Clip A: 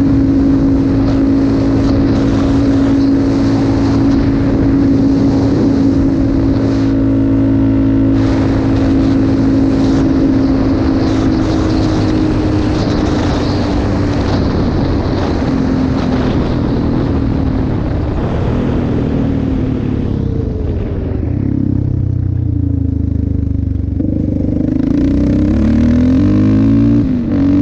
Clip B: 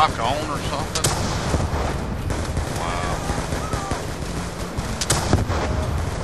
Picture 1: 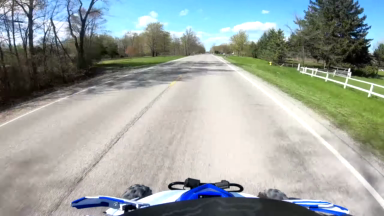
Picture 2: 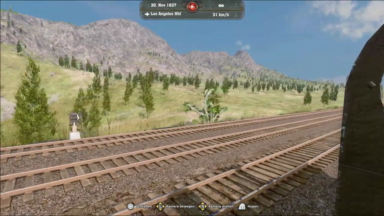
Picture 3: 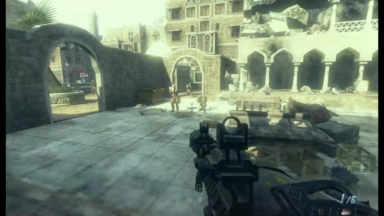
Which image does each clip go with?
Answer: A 1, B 3